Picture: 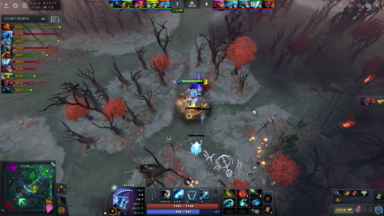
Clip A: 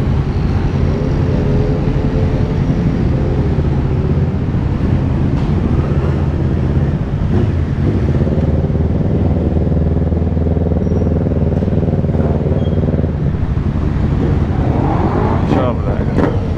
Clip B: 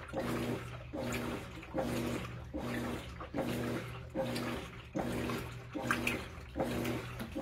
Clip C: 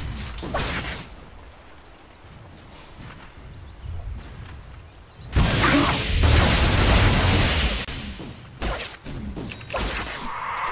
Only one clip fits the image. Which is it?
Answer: C